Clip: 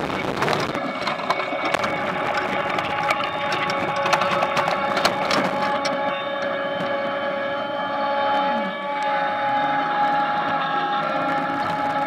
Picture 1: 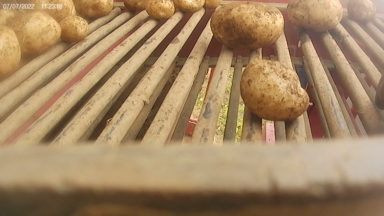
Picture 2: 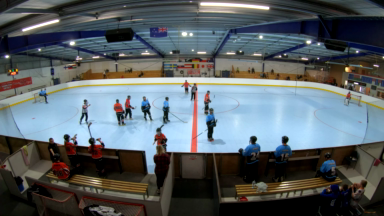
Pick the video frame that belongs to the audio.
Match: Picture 1